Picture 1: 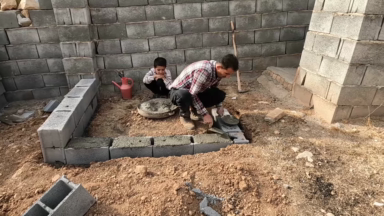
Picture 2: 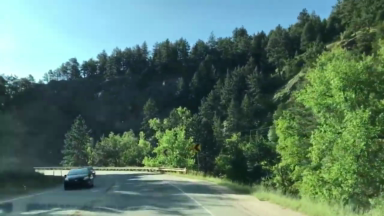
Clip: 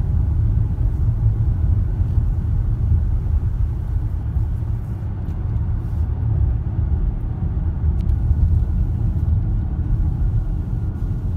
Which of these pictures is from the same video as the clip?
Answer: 2